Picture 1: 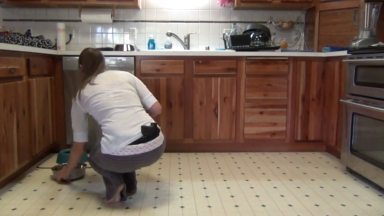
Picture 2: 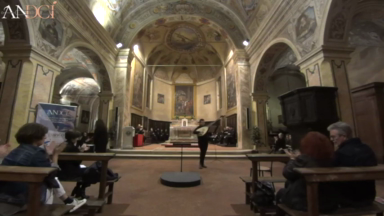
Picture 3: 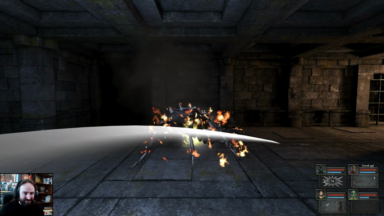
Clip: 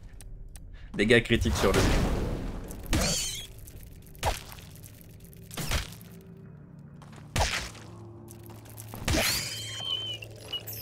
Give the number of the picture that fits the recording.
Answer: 3